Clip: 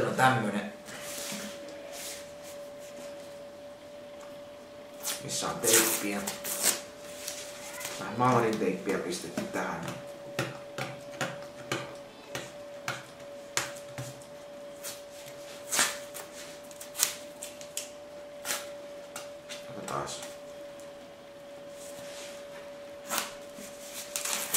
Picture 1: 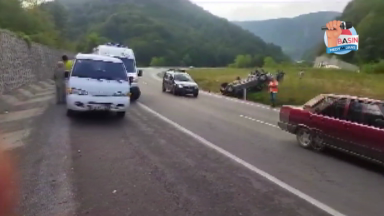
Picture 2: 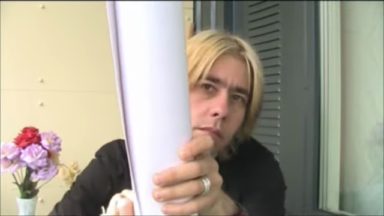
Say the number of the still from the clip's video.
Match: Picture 2